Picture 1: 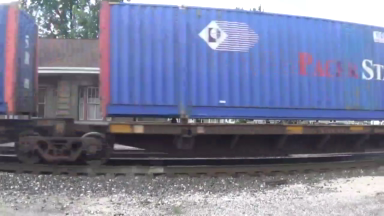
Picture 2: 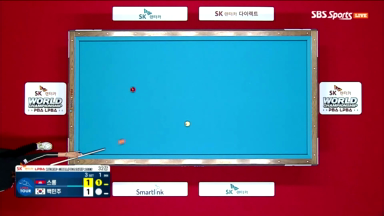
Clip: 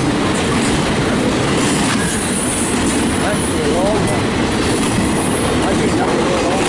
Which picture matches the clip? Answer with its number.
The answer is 1